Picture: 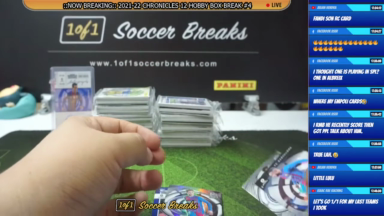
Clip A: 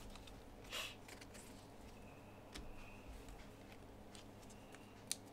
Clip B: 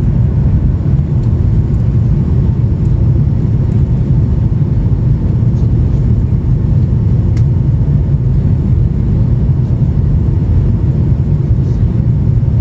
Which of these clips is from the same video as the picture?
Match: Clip A